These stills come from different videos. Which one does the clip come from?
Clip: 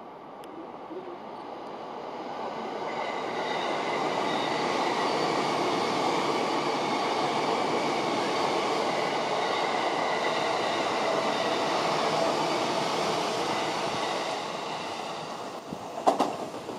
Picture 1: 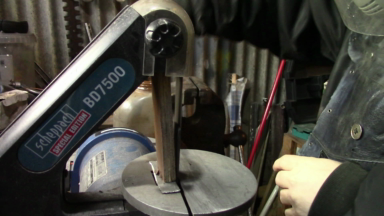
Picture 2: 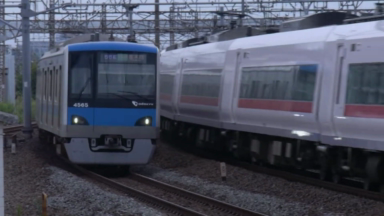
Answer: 2